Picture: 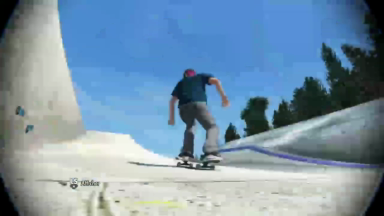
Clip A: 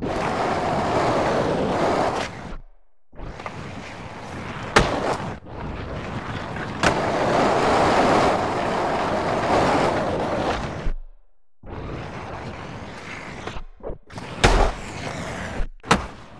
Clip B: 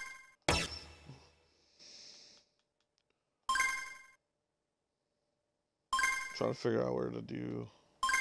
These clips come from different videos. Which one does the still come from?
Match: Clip A